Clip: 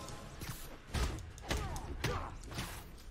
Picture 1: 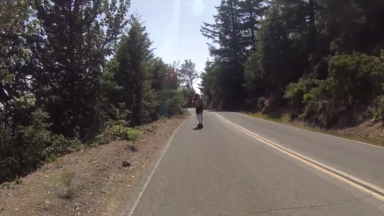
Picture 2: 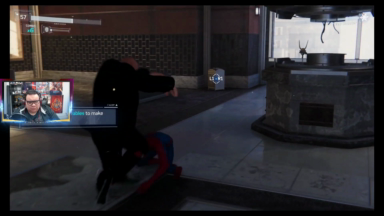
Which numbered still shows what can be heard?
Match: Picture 2